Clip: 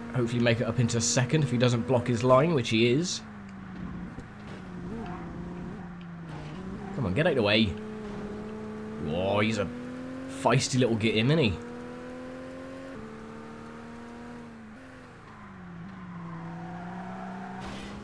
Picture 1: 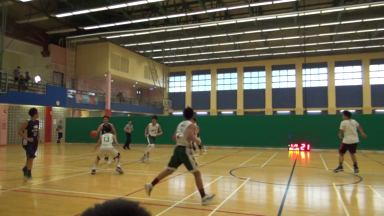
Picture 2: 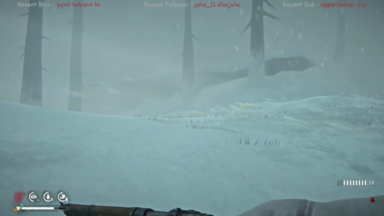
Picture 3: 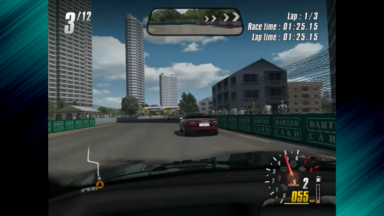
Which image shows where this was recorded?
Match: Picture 3